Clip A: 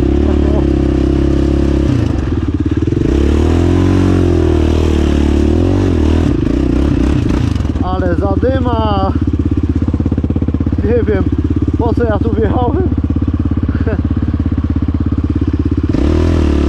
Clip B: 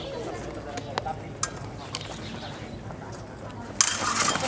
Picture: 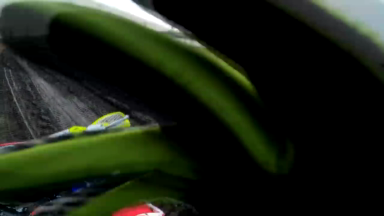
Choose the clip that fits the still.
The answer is A